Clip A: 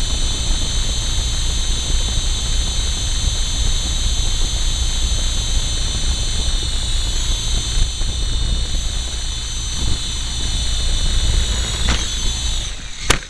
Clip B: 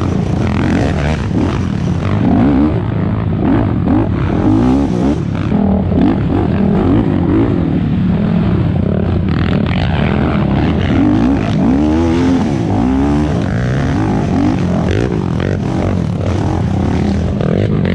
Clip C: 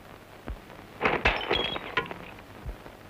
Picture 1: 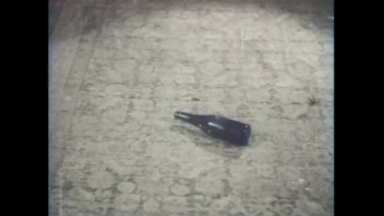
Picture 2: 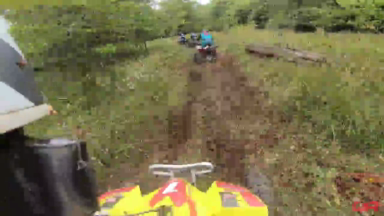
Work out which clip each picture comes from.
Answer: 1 C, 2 B